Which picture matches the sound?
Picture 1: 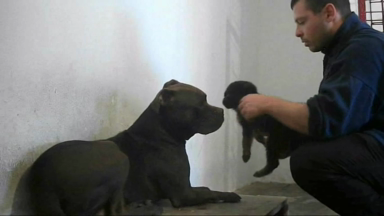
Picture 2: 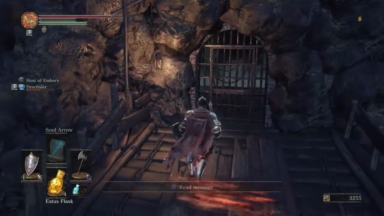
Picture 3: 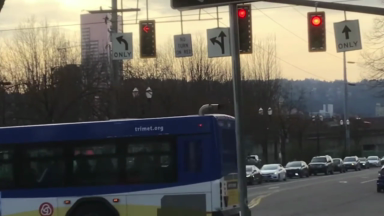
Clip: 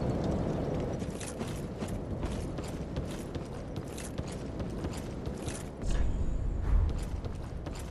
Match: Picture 2